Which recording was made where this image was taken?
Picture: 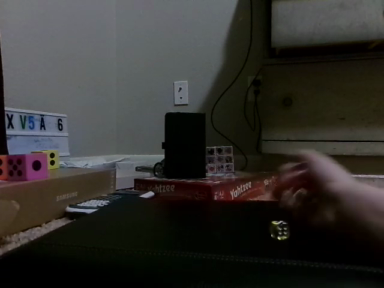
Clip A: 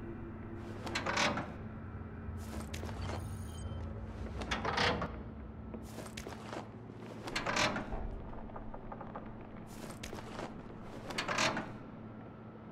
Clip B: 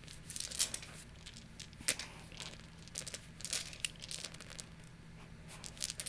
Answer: B